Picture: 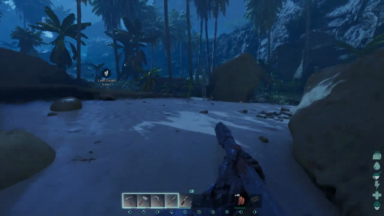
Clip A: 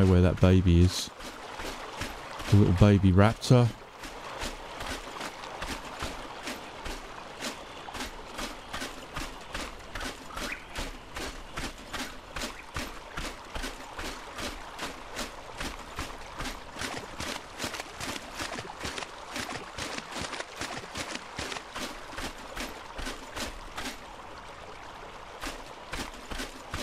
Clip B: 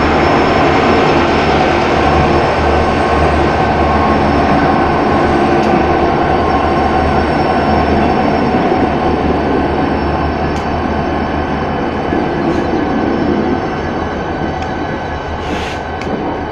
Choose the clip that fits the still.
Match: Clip A